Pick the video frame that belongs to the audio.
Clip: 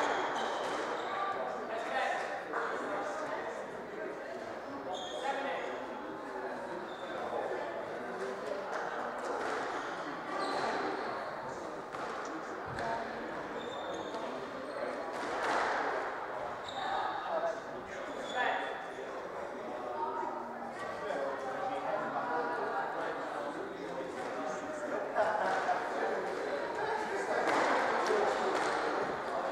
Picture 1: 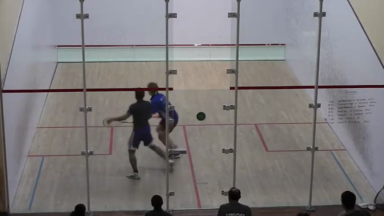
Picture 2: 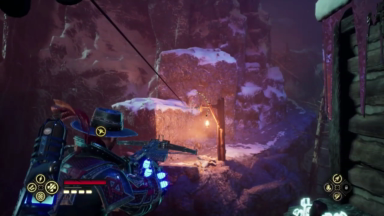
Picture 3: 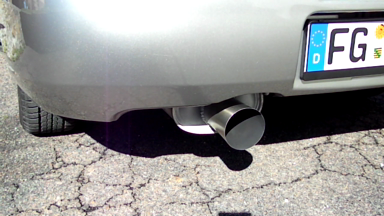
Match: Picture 1